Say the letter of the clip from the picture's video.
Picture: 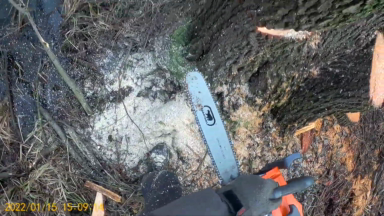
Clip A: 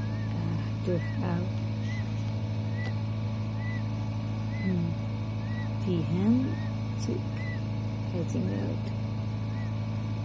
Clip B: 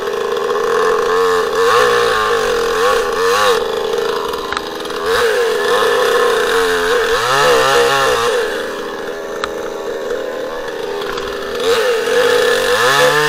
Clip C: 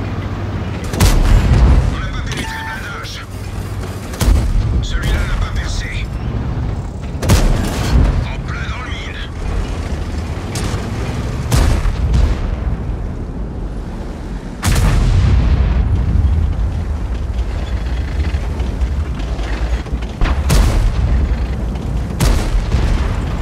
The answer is B